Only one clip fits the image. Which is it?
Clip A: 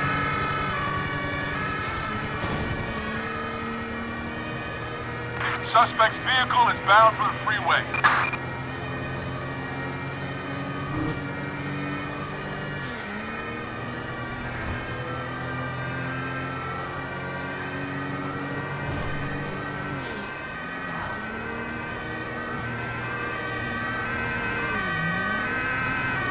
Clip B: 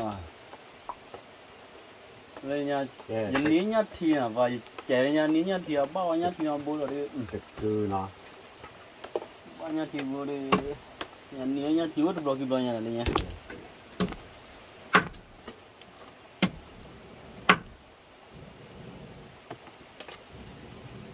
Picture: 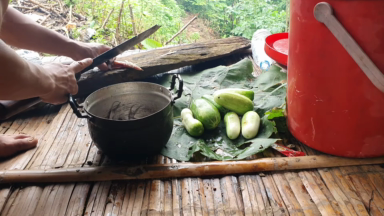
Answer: B